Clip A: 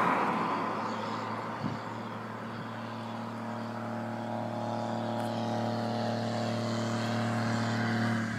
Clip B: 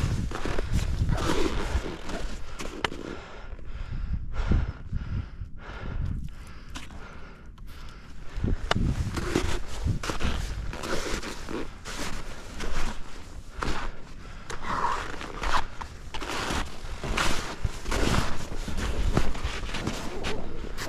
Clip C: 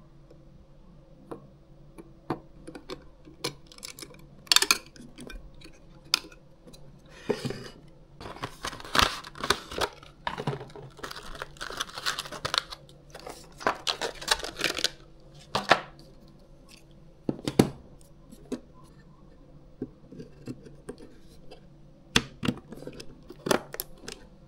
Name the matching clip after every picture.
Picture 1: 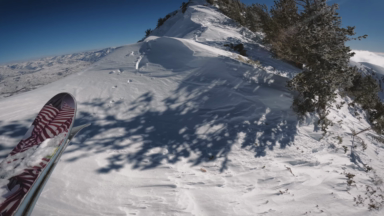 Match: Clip B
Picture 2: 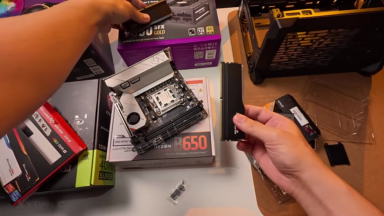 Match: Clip C